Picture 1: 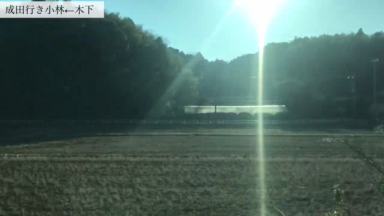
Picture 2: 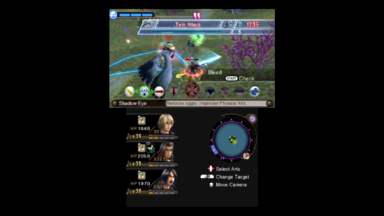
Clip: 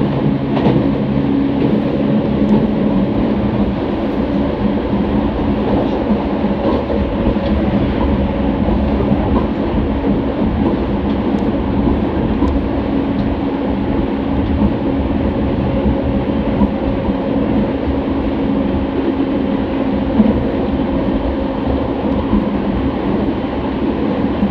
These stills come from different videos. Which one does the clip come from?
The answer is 1